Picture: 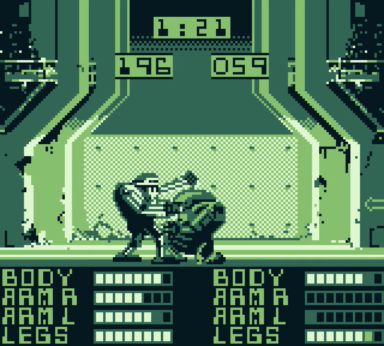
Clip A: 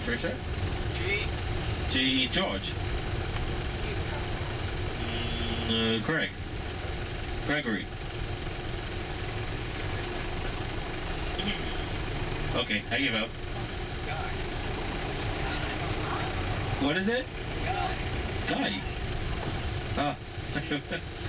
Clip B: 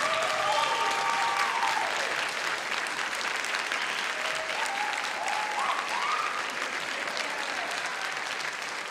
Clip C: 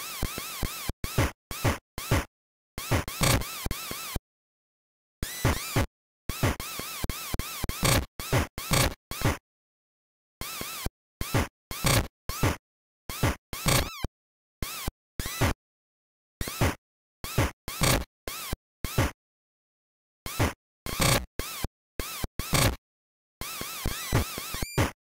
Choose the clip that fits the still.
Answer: C